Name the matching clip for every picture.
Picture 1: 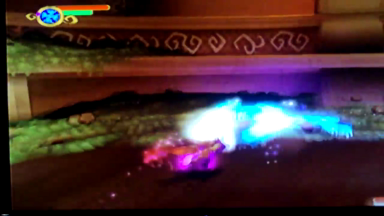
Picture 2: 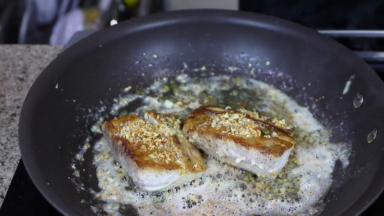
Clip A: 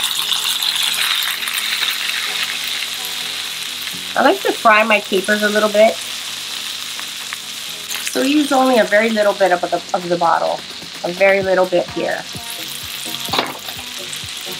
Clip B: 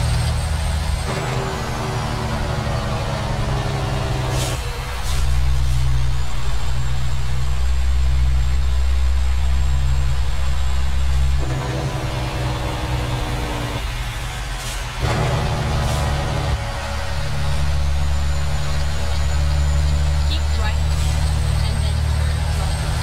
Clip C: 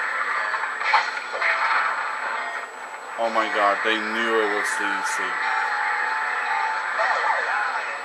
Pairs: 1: C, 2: A